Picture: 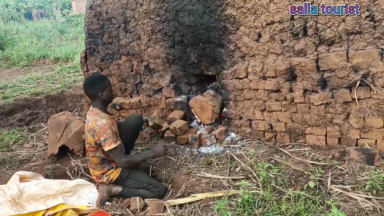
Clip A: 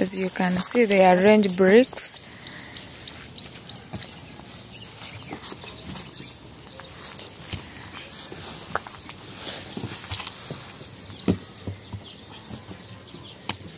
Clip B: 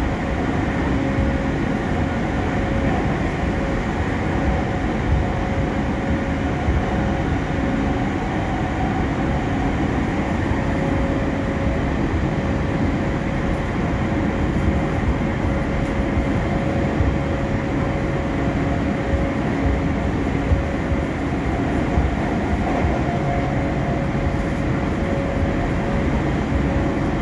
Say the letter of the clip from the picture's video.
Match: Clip A